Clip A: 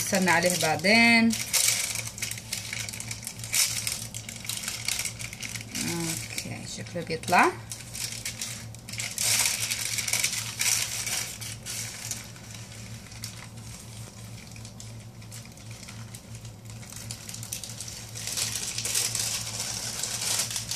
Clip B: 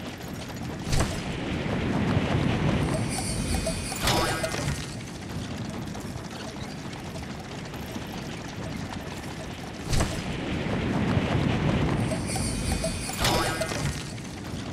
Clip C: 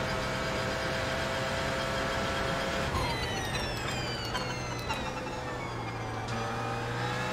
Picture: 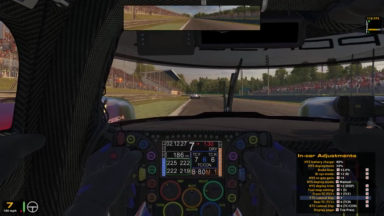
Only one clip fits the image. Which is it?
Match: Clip C